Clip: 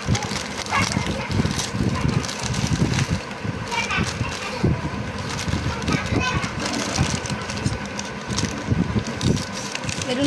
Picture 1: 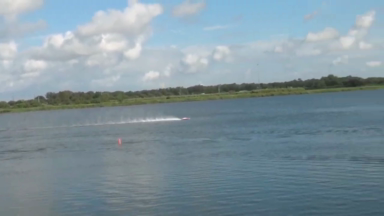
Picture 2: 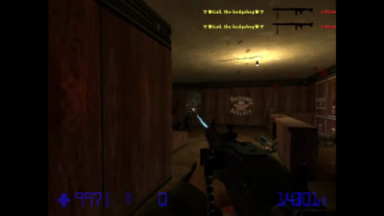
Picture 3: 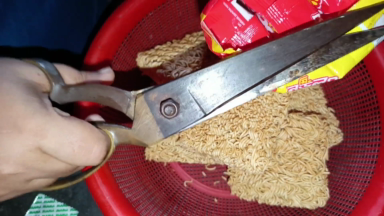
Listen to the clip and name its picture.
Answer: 3